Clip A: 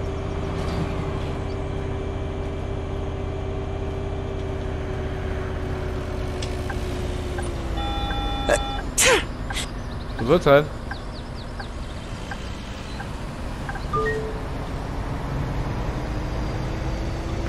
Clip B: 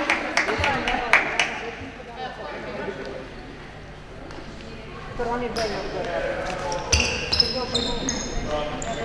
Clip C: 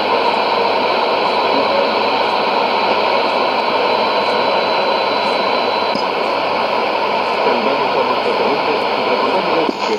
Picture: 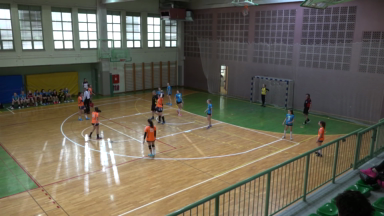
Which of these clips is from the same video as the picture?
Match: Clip B